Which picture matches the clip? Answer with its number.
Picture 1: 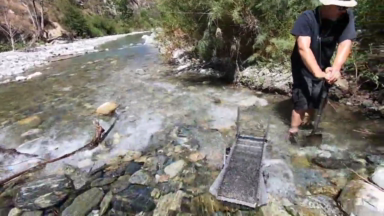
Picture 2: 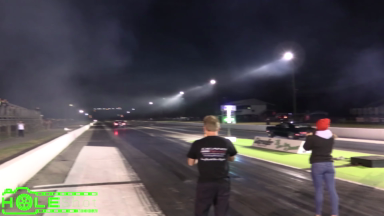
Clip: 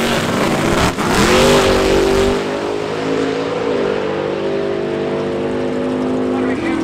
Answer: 2